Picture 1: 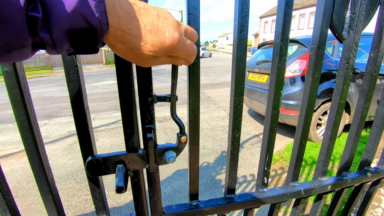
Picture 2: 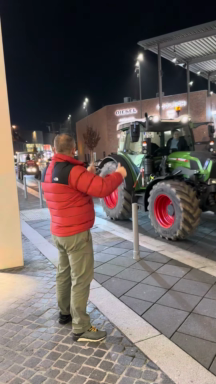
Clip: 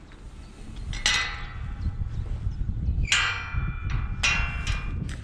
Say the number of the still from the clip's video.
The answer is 1